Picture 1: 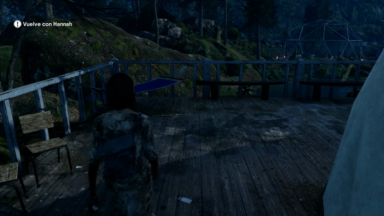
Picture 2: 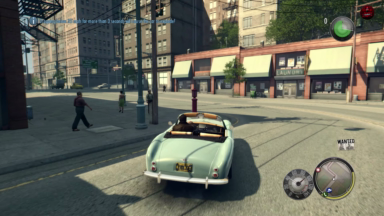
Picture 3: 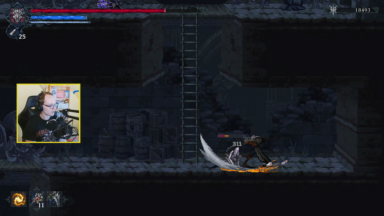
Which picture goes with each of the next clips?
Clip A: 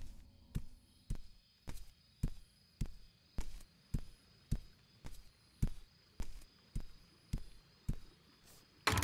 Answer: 1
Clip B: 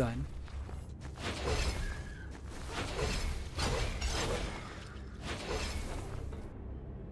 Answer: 3